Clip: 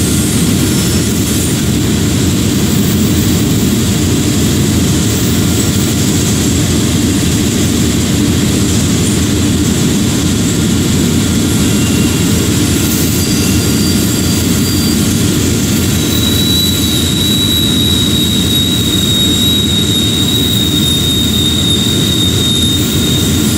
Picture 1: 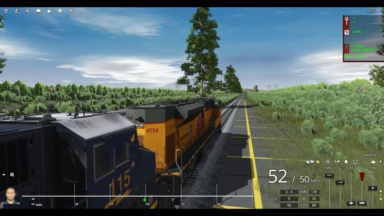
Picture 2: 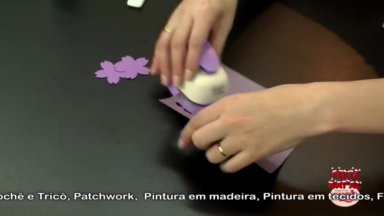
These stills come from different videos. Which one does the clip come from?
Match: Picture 1